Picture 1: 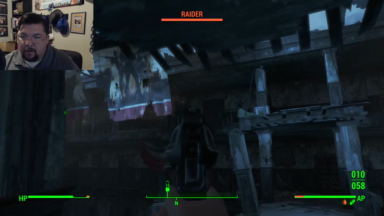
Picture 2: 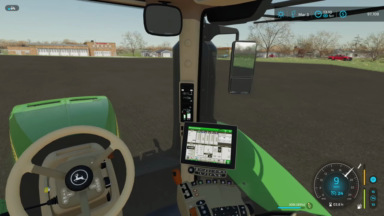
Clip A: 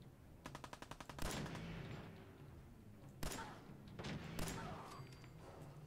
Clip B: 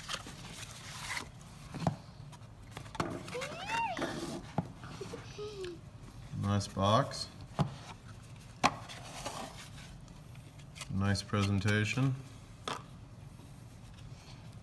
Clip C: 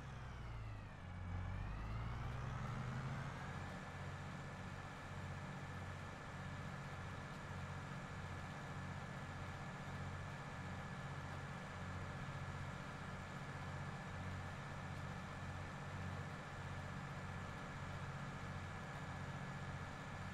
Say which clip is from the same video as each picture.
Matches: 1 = A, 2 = C